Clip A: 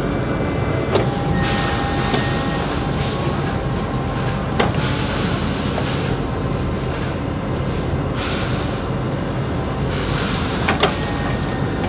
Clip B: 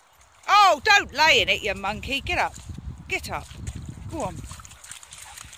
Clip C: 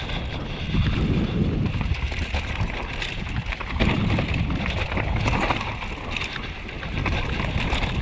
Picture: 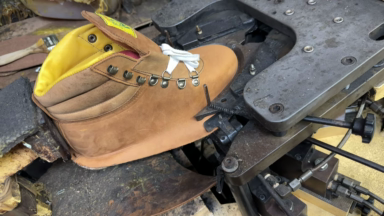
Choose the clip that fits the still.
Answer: A